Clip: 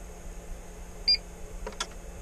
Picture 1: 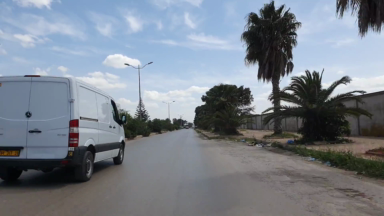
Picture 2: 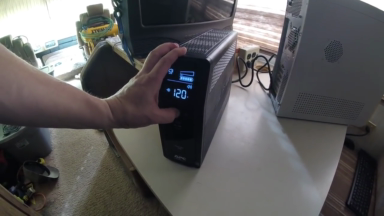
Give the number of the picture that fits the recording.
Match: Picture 2